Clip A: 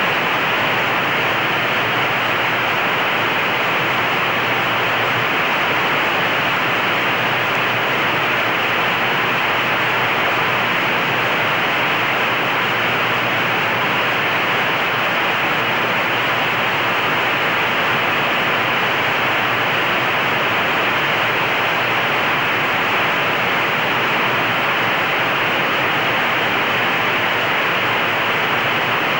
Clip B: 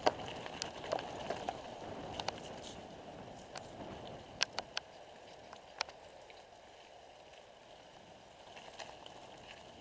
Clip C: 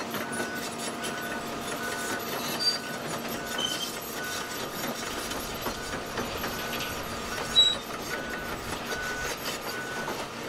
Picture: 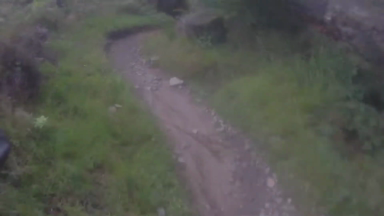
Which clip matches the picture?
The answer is B